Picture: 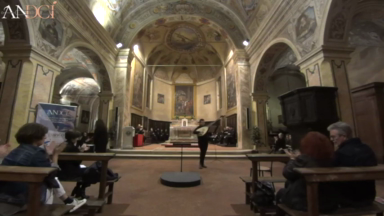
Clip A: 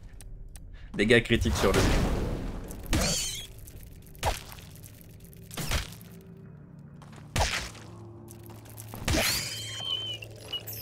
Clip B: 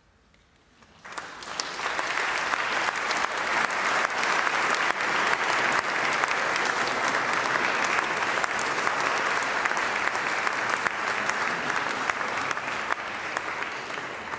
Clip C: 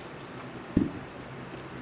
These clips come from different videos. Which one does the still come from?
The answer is B